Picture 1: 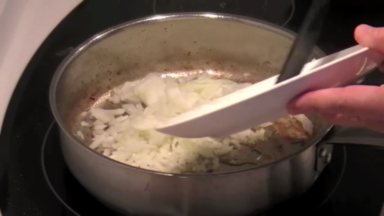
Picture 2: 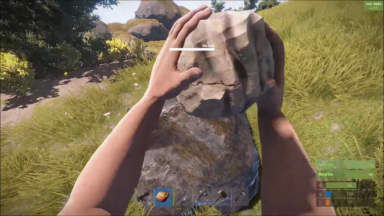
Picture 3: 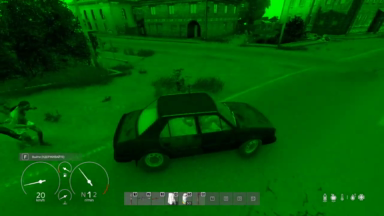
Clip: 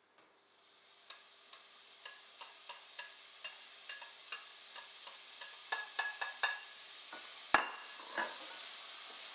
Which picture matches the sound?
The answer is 1